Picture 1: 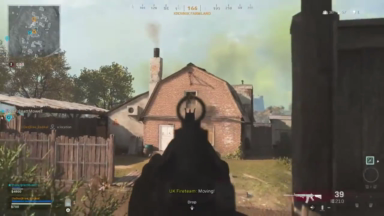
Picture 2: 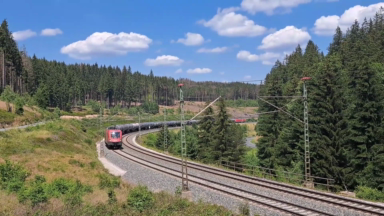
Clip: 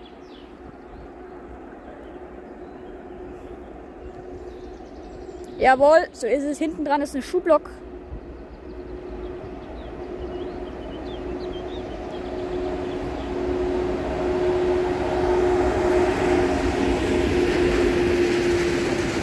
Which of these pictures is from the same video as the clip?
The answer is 2